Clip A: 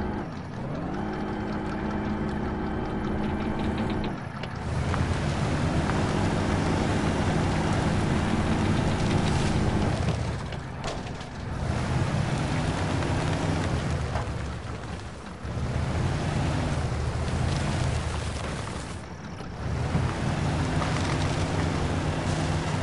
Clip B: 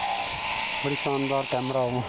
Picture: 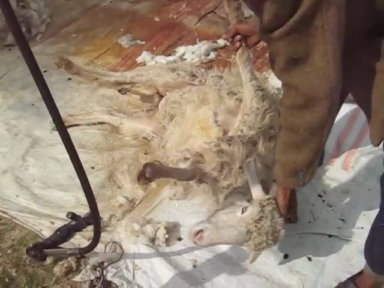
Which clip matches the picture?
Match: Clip B